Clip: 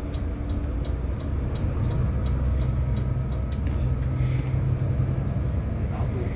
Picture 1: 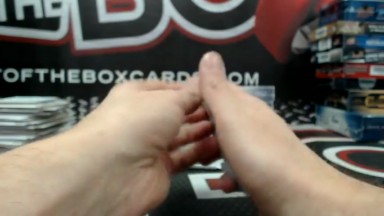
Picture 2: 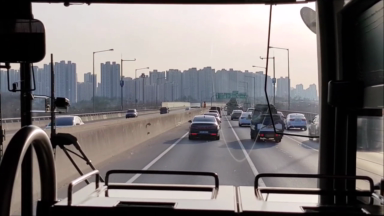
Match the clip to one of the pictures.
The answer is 2